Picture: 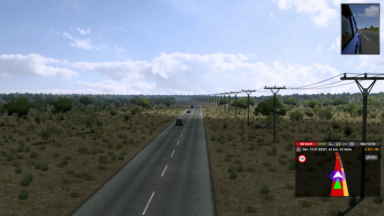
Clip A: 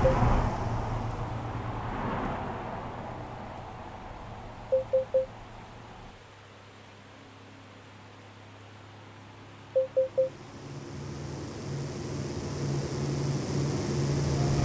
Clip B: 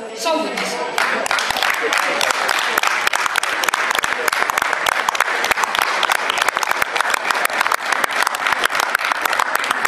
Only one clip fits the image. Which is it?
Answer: A